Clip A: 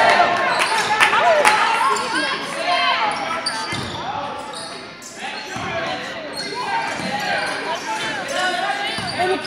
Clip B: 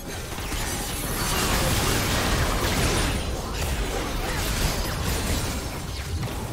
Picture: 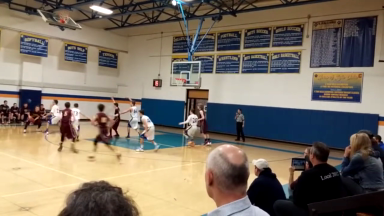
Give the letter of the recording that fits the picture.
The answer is A